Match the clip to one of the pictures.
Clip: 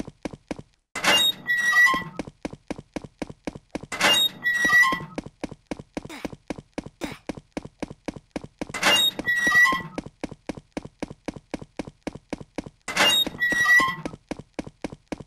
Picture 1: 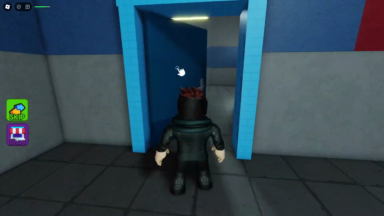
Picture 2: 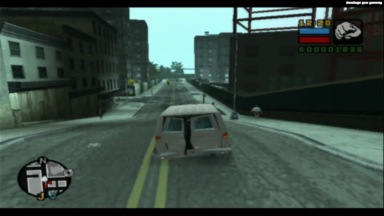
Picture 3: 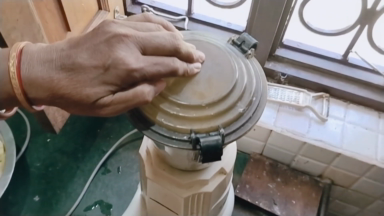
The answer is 1